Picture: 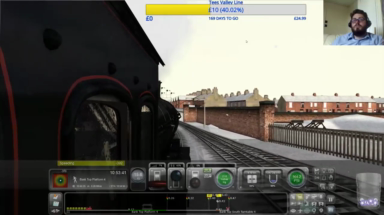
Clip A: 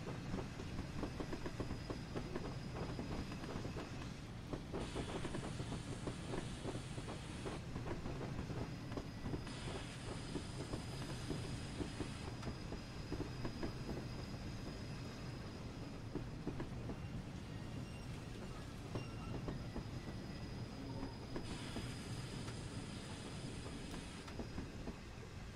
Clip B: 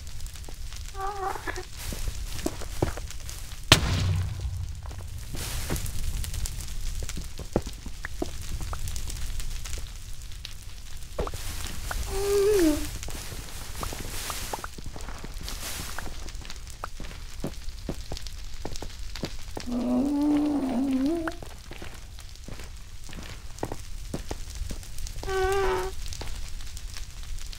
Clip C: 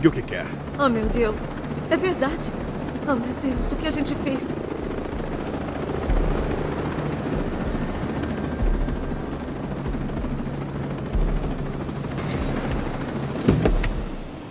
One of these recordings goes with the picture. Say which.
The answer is A